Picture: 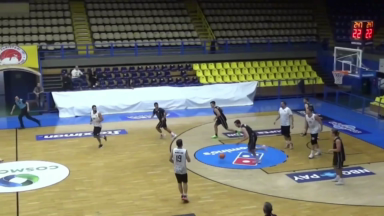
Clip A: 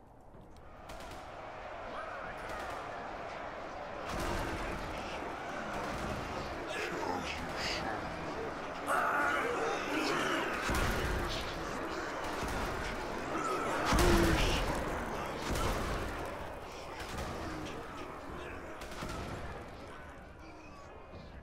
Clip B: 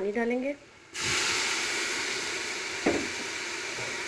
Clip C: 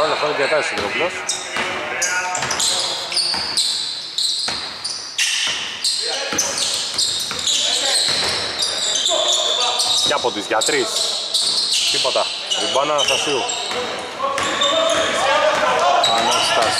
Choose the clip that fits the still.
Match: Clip C